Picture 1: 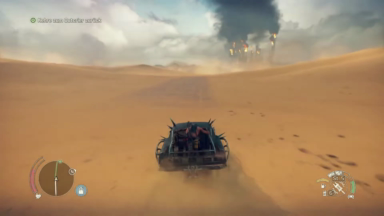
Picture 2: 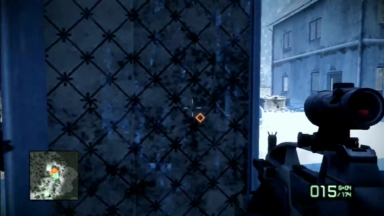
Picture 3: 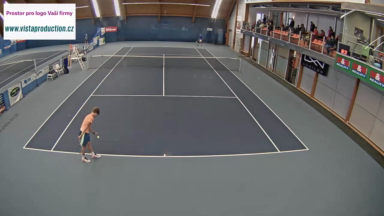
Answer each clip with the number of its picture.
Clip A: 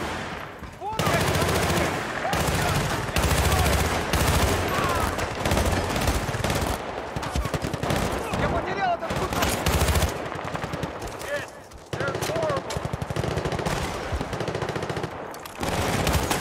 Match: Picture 2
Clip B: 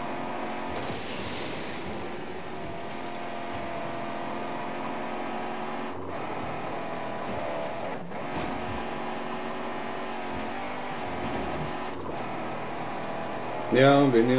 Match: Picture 1